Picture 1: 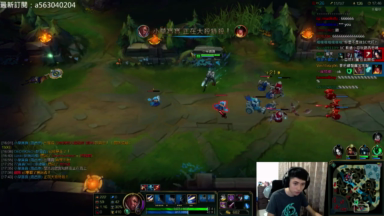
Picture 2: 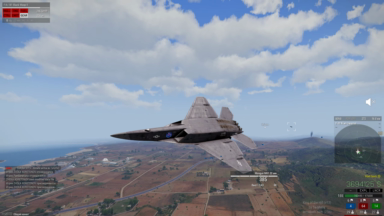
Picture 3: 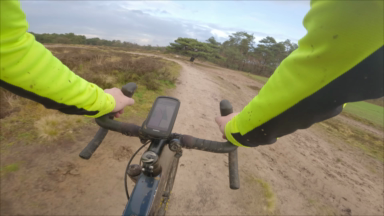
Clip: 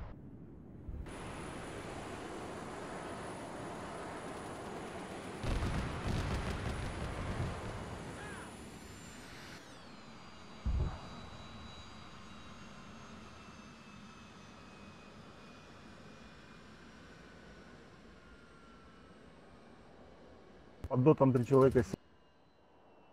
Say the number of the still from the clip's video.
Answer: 2